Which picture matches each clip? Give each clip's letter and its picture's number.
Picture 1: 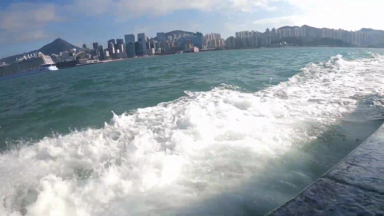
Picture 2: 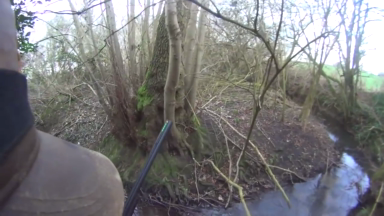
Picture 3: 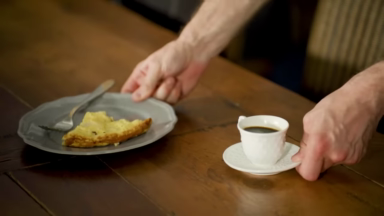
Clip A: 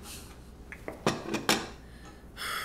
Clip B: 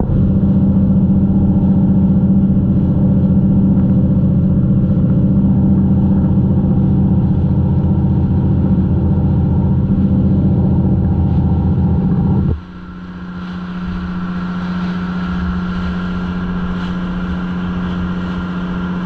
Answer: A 3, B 1